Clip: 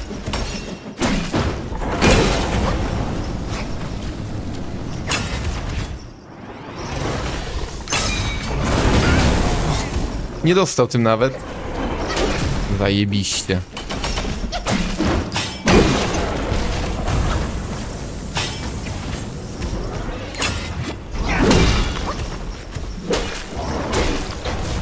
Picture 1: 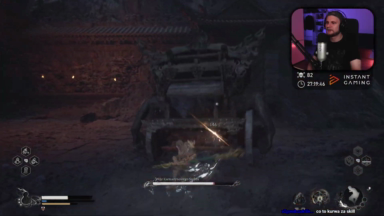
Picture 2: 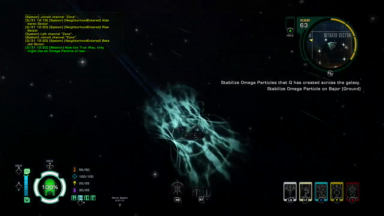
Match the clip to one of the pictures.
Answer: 1